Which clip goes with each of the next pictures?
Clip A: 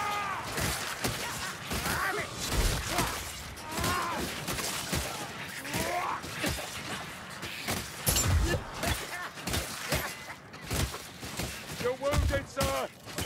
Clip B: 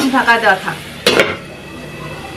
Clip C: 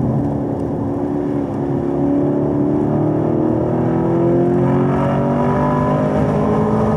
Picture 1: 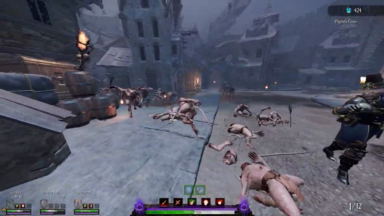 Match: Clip A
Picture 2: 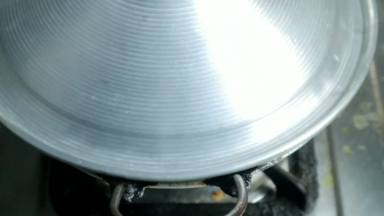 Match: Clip B